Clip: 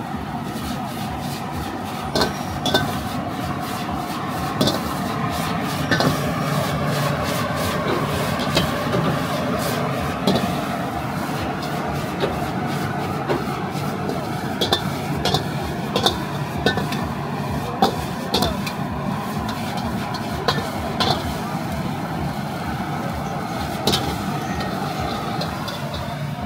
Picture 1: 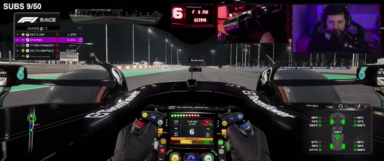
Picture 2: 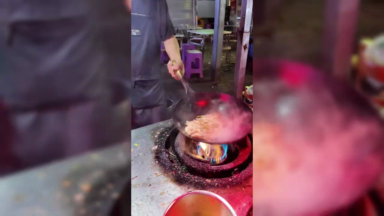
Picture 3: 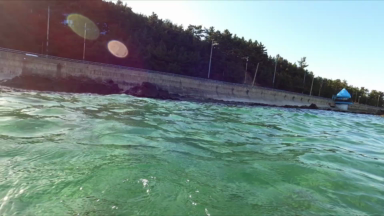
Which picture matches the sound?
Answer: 2